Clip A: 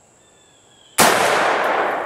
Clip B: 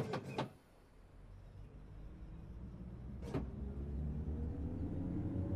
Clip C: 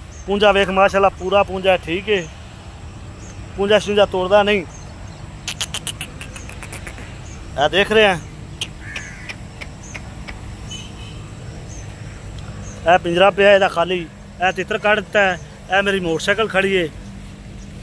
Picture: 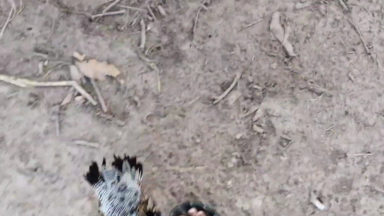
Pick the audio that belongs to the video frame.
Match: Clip C